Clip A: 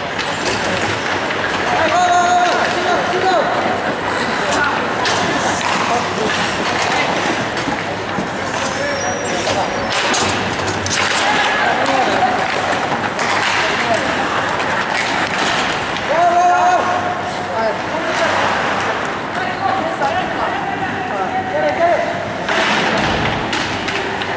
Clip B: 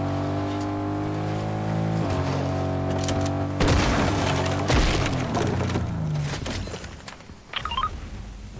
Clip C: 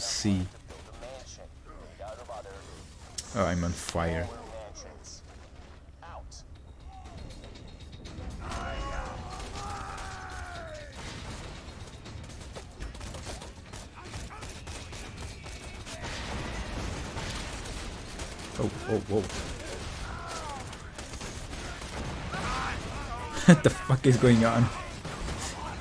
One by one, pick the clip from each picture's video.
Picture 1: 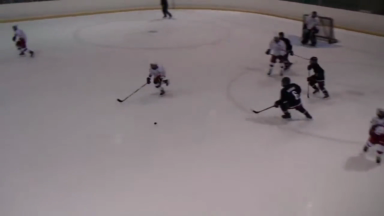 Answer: A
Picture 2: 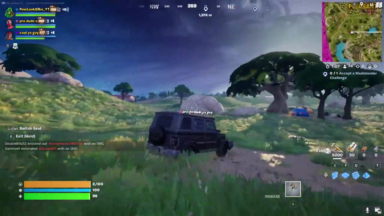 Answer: B